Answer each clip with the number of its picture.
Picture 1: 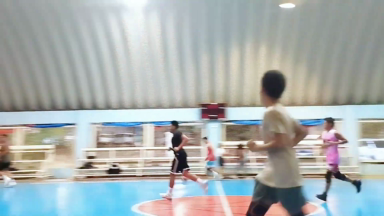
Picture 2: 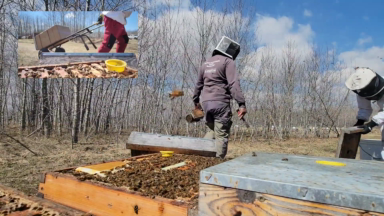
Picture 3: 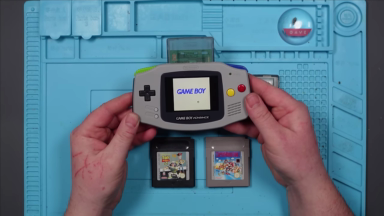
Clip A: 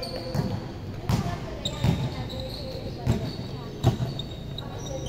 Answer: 1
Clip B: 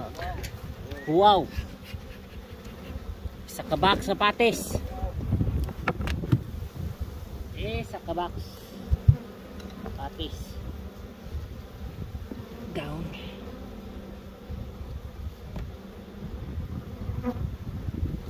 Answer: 2